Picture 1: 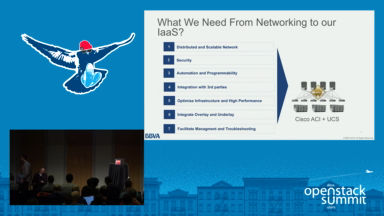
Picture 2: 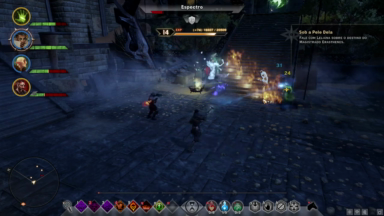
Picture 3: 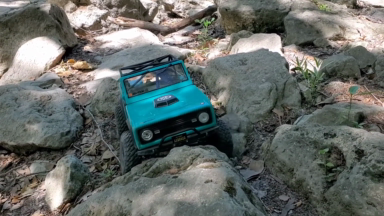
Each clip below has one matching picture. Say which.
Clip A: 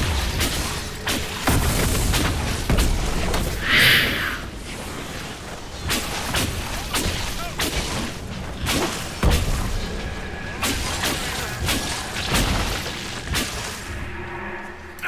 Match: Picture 2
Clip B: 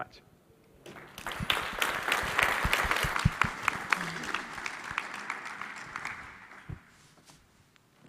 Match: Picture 1